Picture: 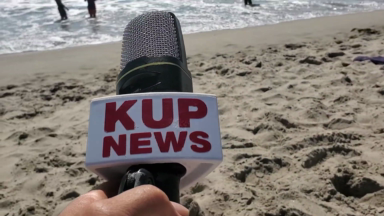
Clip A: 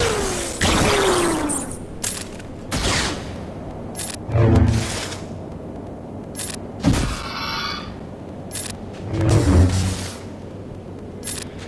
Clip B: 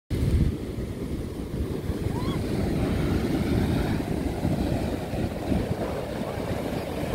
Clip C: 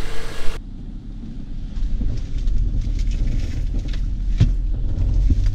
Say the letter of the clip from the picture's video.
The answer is B